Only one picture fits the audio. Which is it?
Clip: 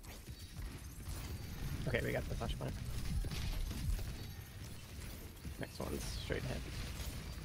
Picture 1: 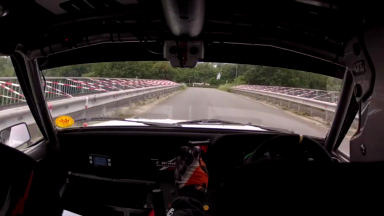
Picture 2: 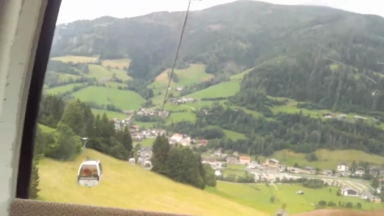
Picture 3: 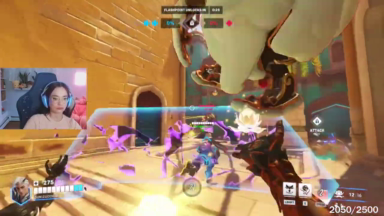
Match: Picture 3